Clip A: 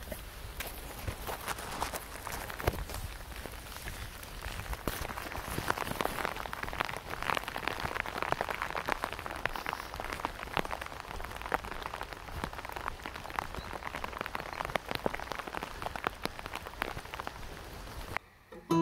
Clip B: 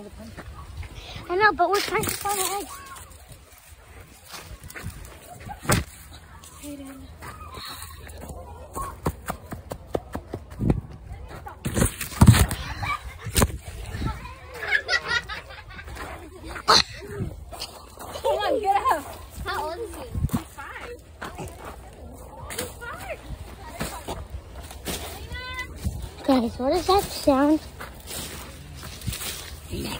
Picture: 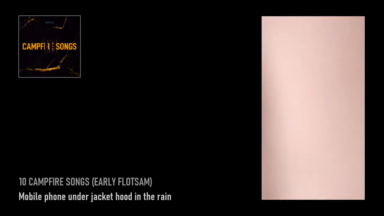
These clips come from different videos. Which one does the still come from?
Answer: A